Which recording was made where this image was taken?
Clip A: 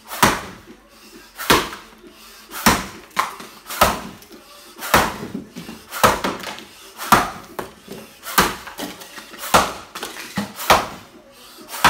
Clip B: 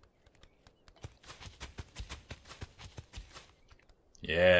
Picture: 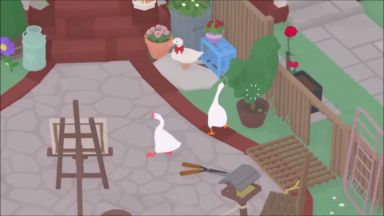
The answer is B